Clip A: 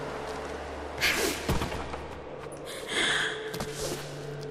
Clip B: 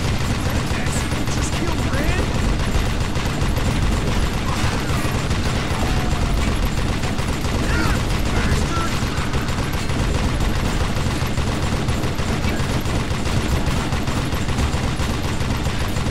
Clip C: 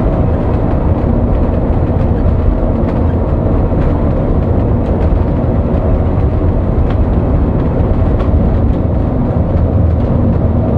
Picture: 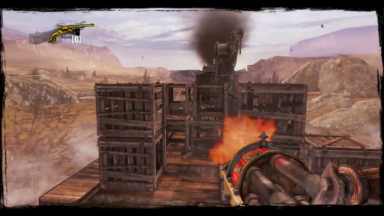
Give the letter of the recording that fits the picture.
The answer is B